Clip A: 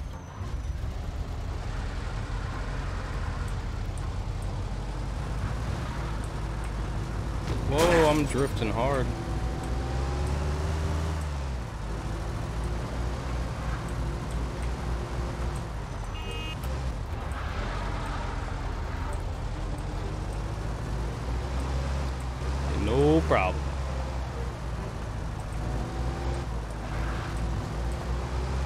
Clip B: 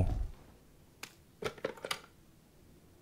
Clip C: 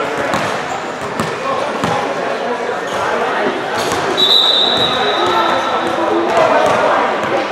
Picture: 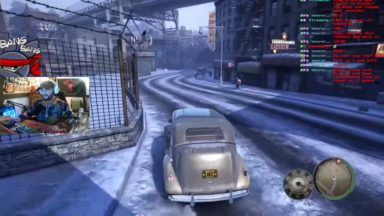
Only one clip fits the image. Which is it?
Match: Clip A